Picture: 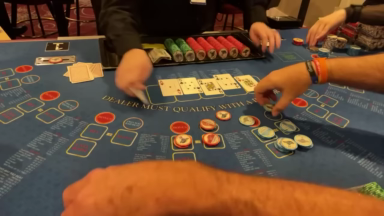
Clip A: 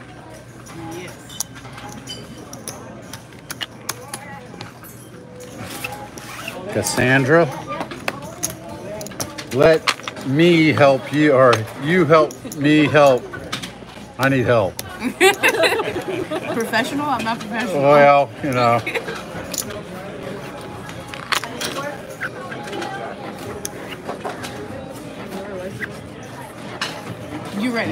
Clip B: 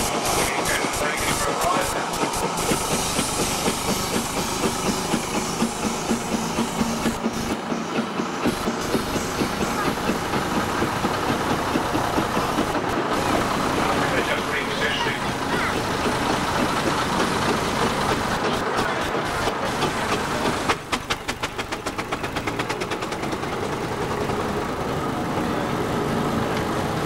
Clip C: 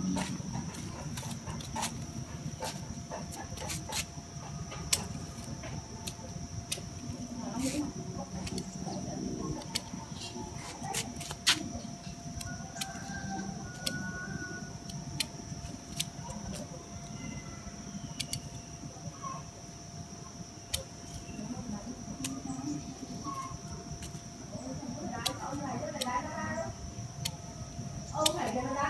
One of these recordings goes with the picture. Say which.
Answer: A